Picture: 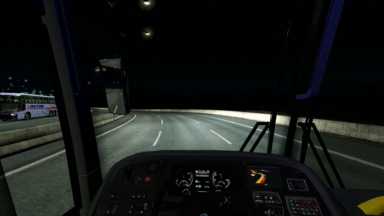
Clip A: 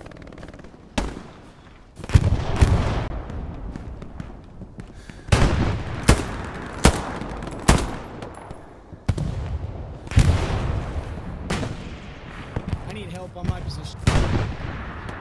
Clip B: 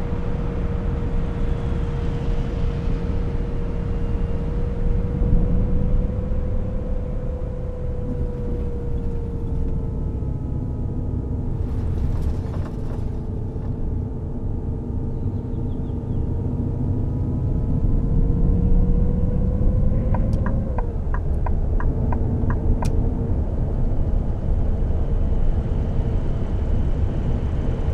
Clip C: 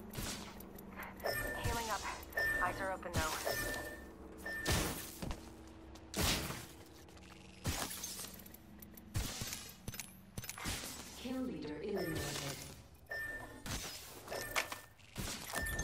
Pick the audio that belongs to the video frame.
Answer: B